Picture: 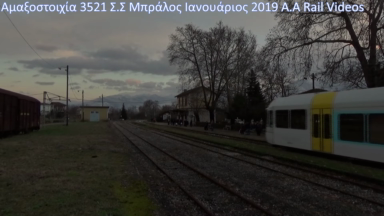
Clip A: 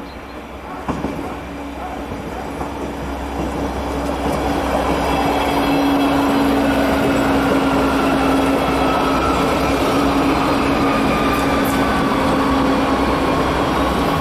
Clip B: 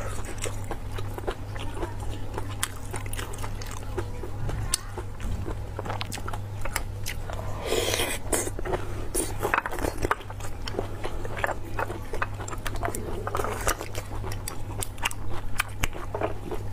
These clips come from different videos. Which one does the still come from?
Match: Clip A